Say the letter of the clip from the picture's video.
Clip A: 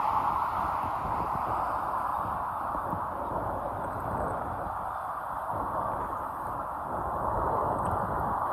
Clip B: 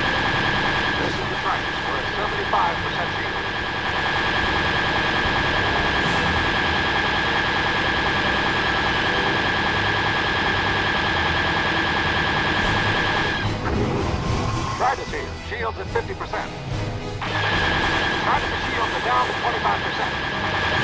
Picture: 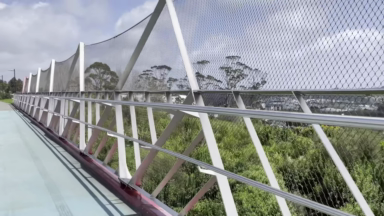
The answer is A